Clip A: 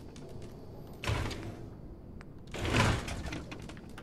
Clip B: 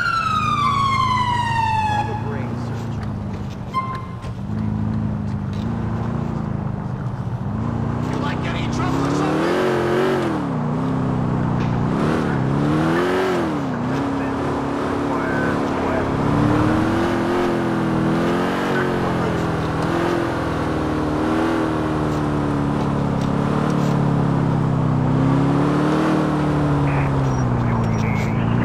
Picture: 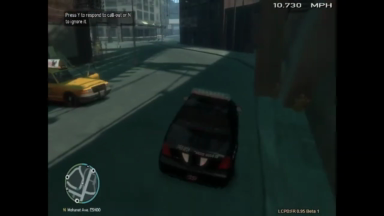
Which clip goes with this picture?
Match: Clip B